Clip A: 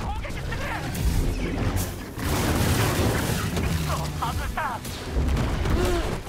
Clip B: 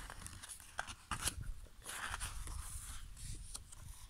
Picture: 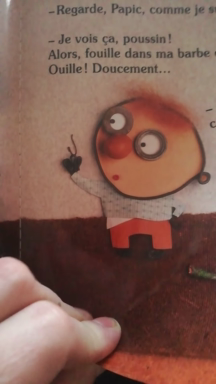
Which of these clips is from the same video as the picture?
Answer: B